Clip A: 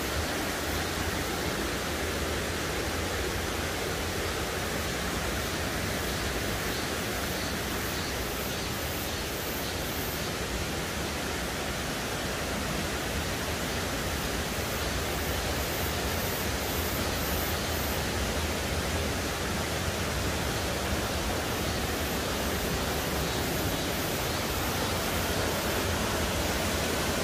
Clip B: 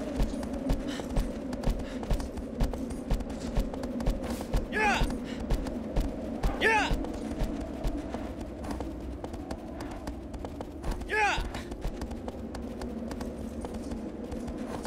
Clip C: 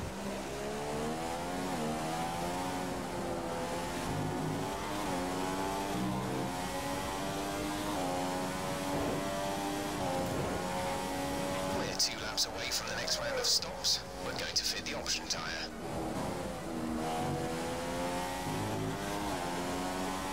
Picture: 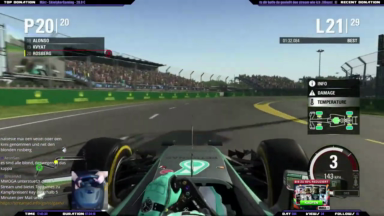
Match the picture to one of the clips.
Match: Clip C